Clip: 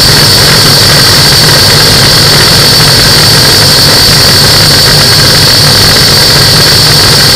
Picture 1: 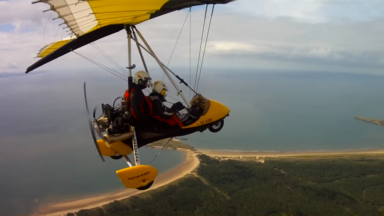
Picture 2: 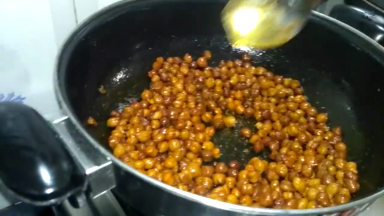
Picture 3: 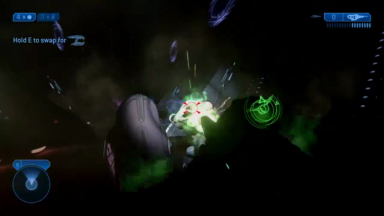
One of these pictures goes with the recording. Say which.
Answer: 1